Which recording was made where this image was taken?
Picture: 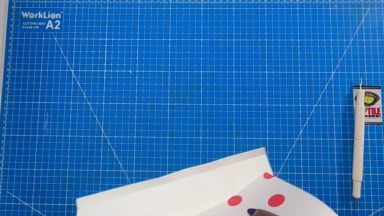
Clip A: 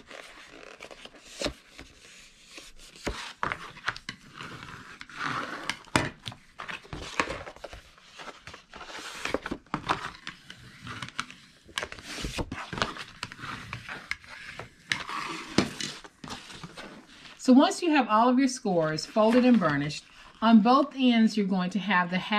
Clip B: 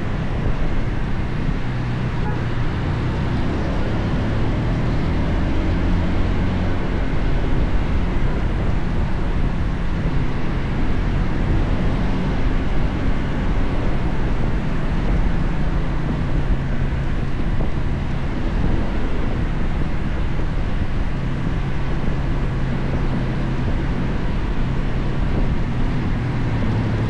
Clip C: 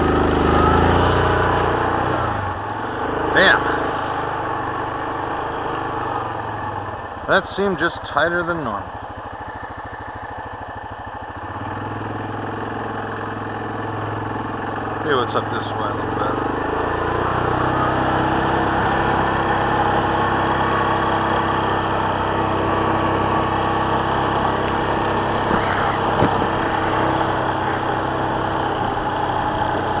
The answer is A